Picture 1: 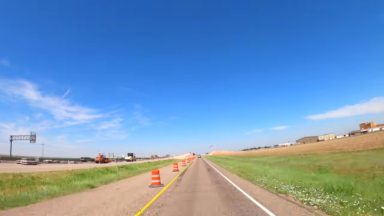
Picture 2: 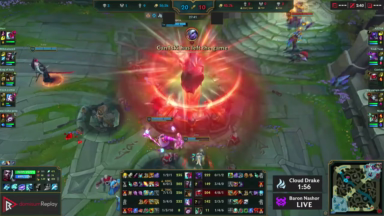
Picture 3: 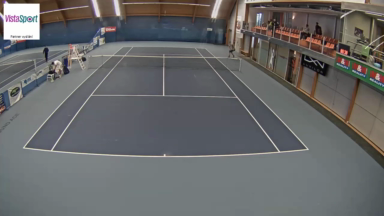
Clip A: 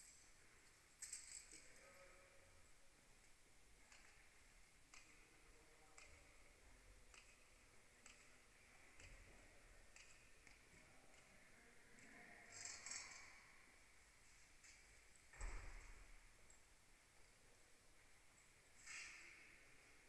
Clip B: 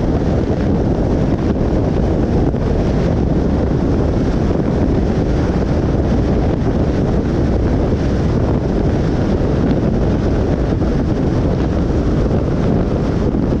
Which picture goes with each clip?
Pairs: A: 3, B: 1